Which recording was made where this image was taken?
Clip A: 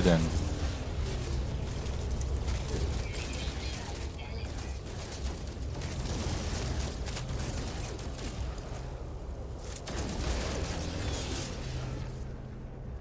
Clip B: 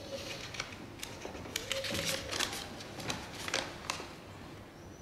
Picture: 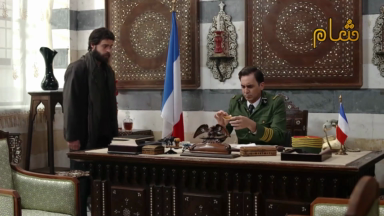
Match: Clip B